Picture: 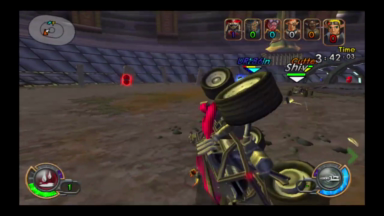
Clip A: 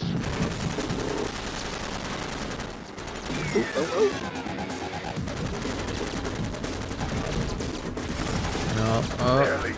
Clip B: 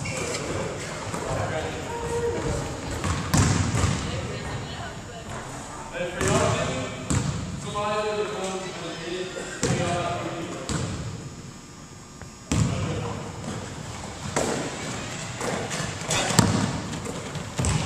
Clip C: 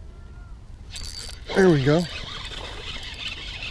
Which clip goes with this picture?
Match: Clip A